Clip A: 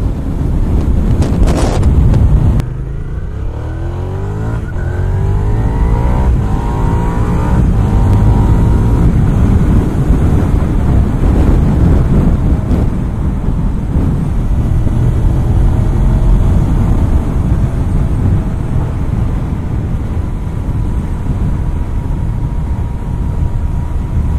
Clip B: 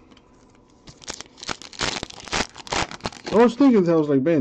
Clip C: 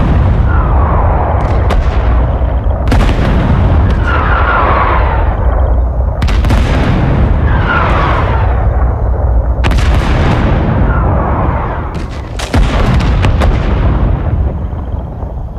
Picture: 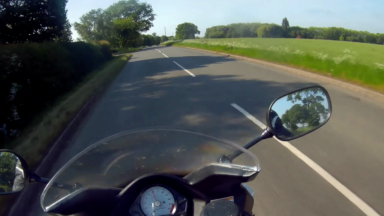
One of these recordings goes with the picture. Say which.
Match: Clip A